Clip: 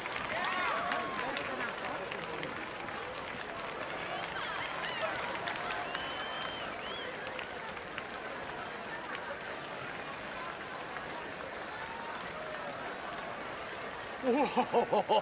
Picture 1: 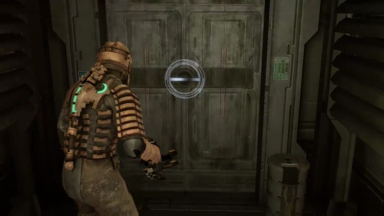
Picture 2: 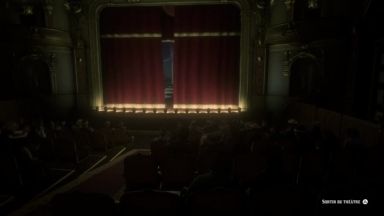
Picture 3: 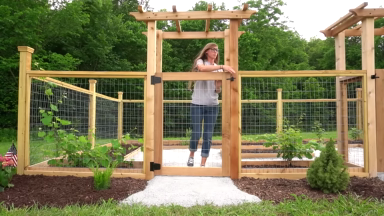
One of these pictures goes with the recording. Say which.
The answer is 2